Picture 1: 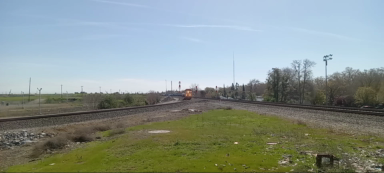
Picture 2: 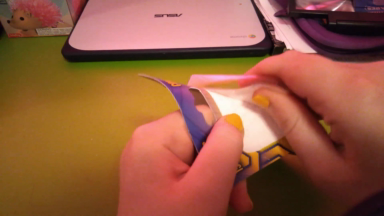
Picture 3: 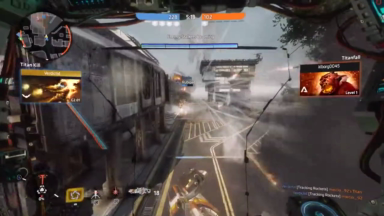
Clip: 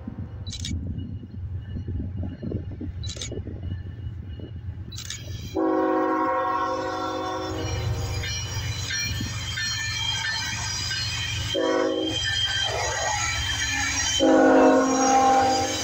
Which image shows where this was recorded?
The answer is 1